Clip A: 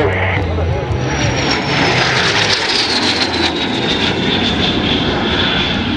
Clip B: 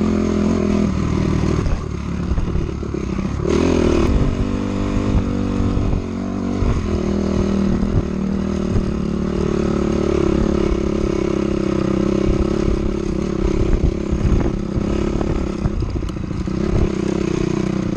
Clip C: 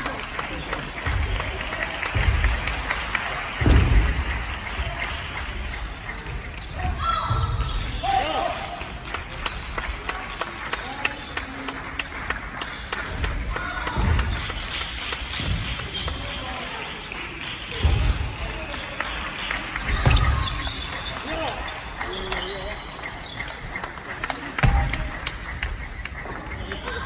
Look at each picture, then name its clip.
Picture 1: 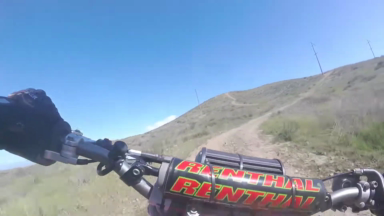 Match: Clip B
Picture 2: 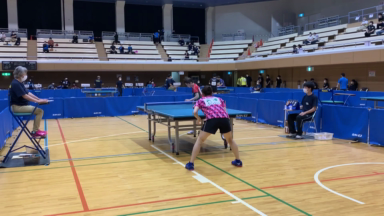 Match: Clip C